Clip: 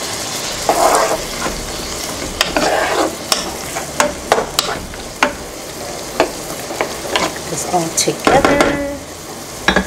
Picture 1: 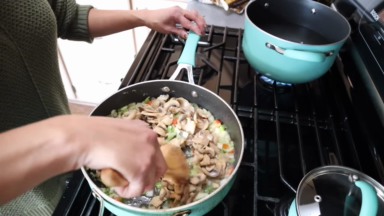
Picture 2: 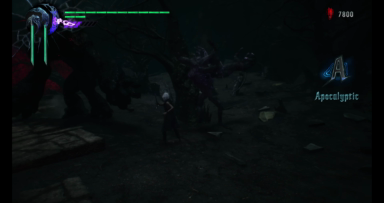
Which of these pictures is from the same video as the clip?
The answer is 1